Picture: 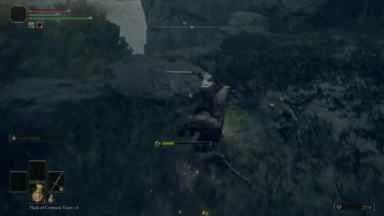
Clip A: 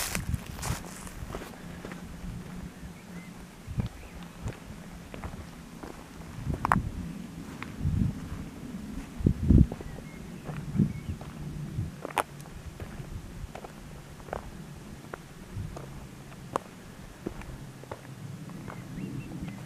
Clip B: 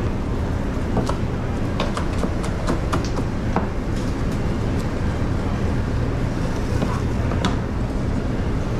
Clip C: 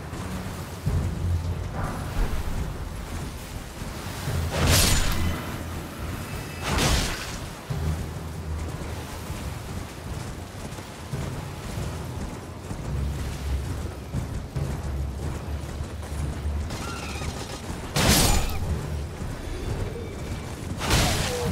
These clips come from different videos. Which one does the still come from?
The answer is C